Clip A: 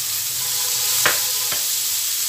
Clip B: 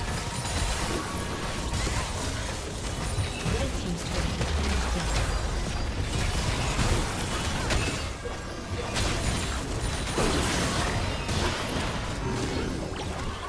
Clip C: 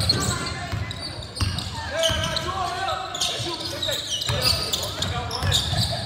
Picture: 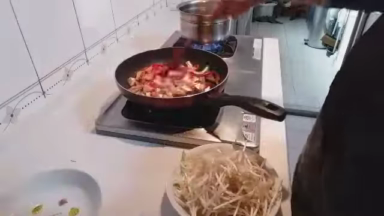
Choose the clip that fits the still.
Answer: A